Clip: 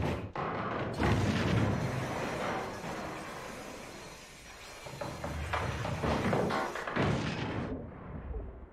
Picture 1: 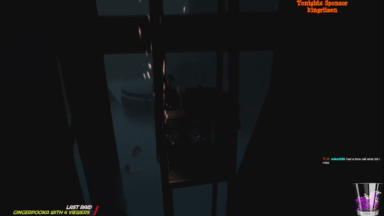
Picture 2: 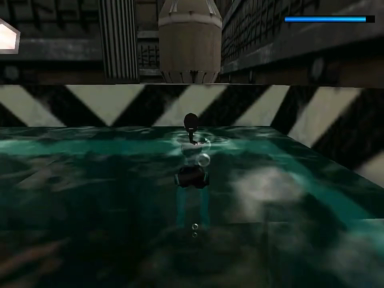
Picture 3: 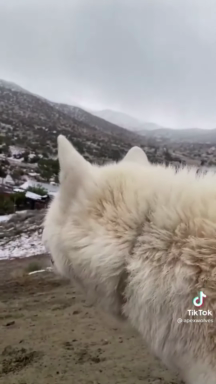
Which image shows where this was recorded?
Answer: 1